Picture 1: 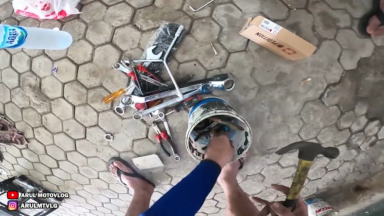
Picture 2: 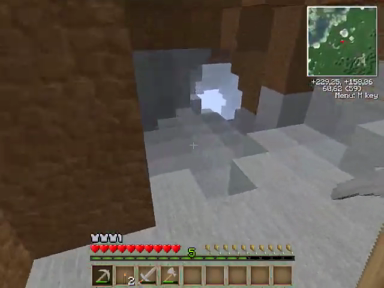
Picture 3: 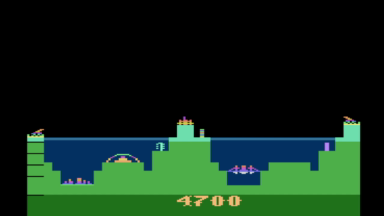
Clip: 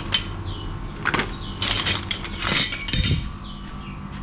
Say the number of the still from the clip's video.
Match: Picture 1